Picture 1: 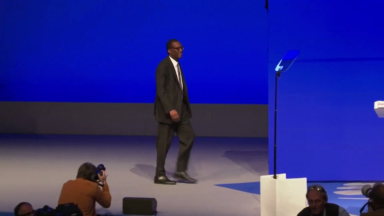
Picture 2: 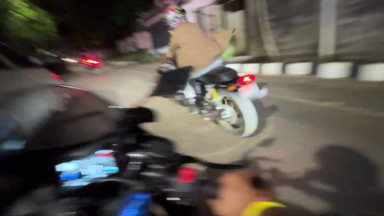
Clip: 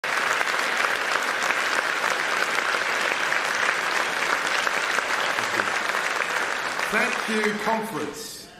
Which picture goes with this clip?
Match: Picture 1